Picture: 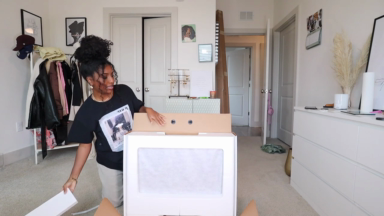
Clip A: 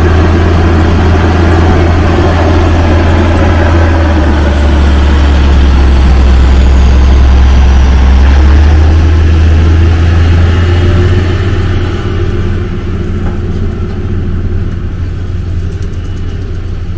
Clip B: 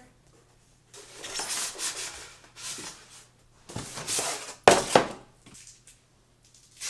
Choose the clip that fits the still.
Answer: B